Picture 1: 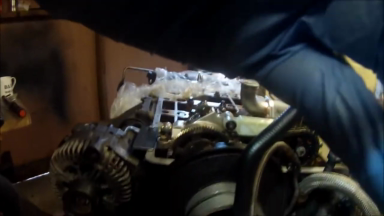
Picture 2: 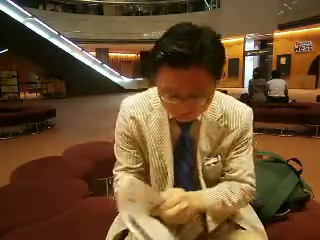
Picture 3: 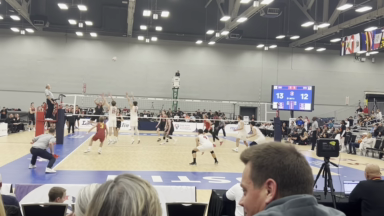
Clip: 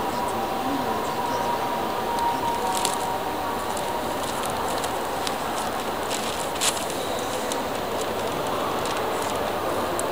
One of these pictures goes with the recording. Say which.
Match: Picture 2